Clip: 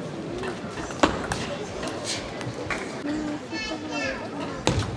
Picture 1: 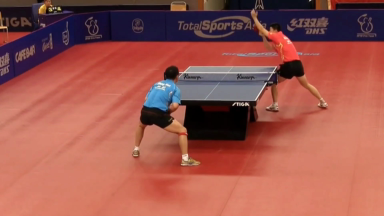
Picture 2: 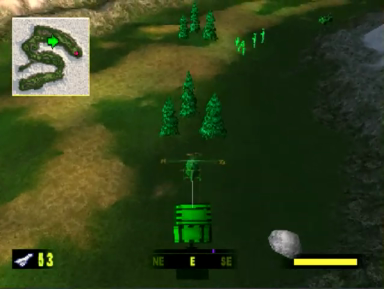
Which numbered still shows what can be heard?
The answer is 1